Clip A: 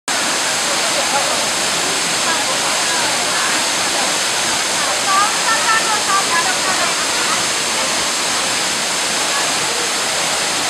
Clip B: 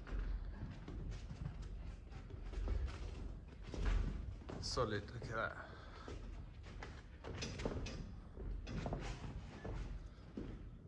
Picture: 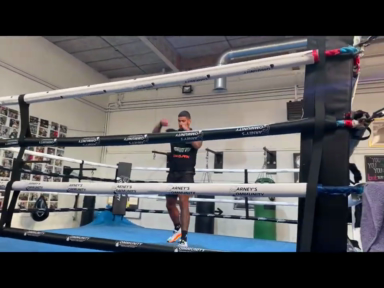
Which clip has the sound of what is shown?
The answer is B